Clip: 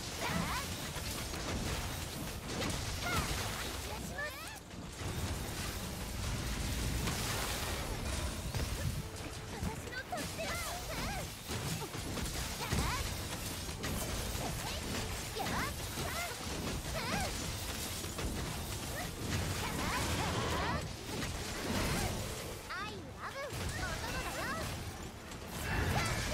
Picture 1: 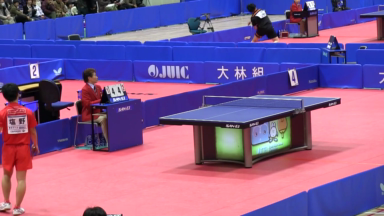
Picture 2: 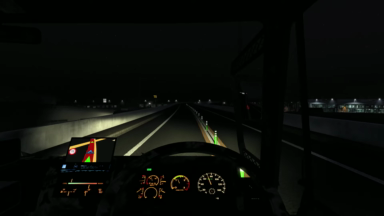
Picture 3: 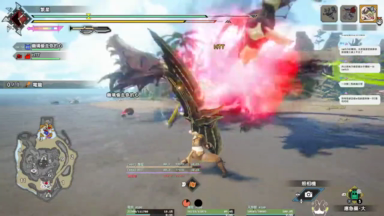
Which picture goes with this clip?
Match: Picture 3